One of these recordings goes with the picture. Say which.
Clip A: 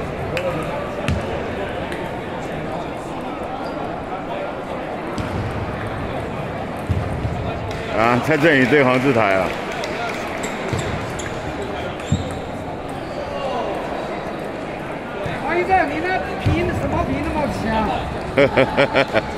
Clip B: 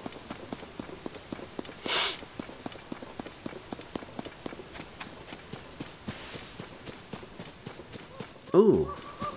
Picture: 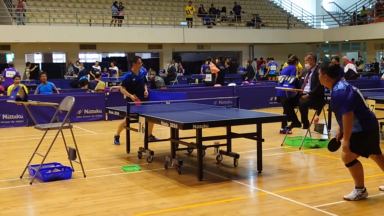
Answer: A